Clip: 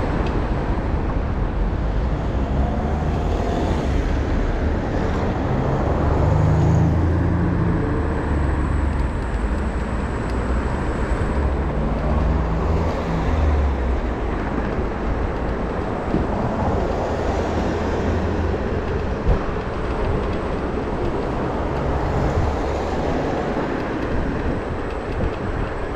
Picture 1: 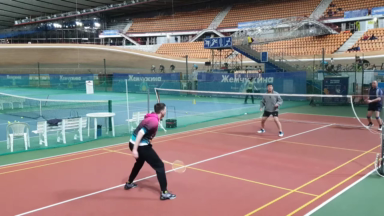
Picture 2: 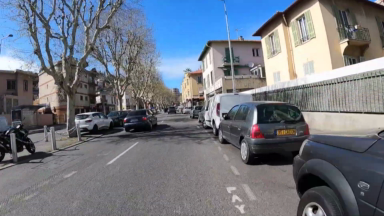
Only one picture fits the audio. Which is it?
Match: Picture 2